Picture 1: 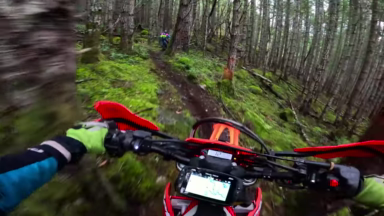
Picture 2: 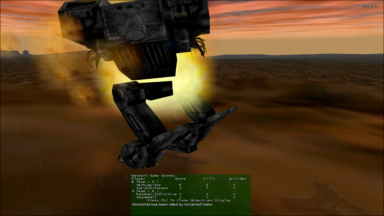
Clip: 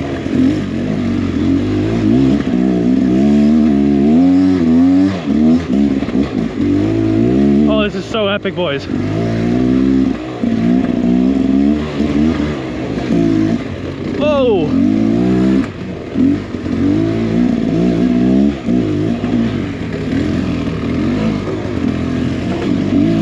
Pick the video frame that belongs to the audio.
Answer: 1